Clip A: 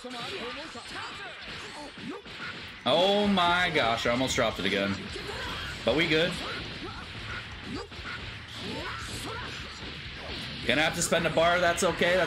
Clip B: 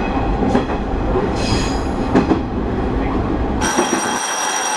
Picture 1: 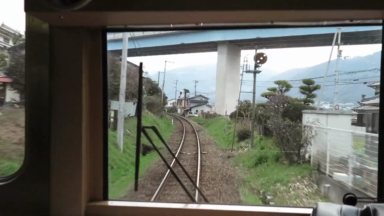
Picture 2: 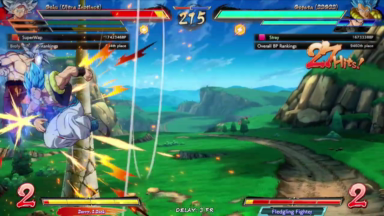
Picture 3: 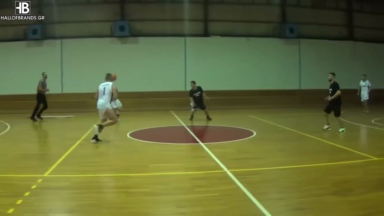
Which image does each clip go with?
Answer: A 2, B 1